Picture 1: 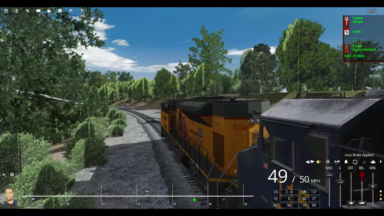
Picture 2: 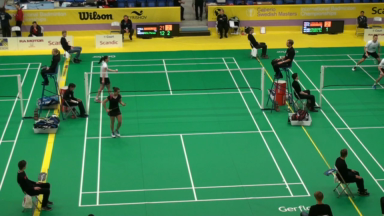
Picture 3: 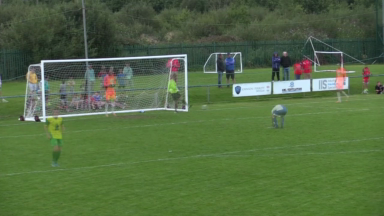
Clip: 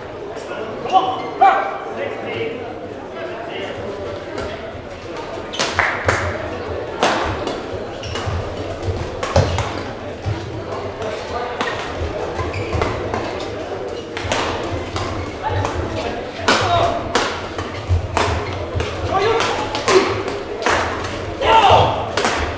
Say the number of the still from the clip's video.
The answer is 2